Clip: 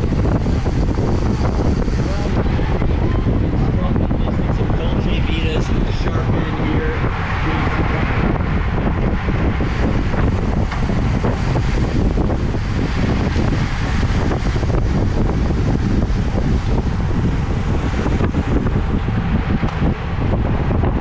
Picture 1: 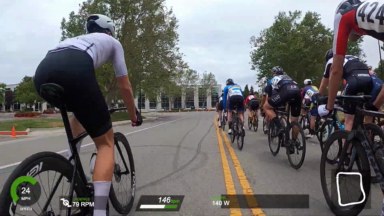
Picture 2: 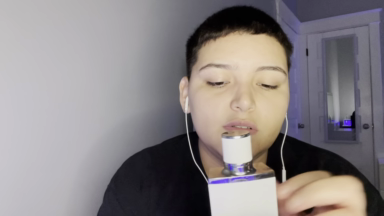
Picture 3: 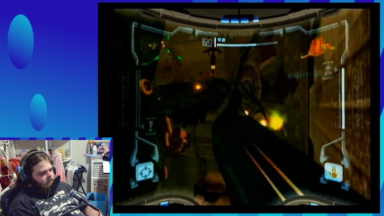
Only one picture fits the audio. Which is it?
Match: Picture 1